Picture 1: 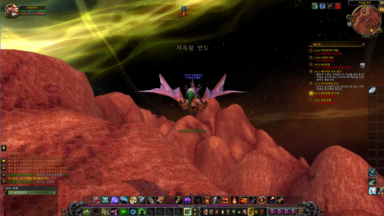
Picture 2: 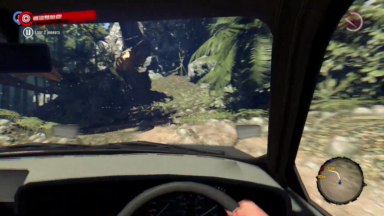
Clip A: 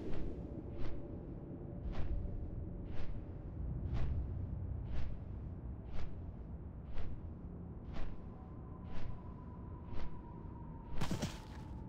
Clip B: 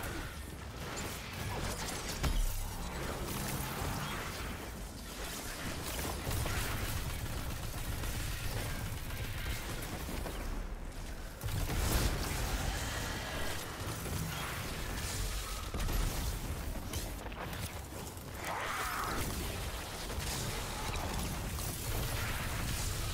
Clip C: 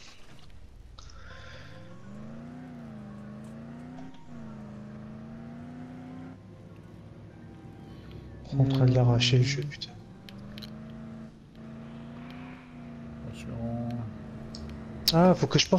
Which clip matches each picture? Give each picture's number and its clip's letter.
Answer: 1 A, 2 C